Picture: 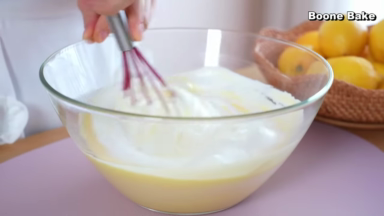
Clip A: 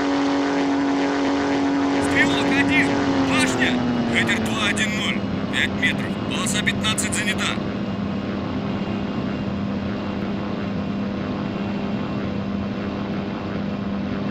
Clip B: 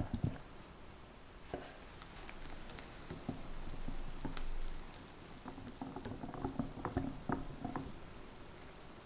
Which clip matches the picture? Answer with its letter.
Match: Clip B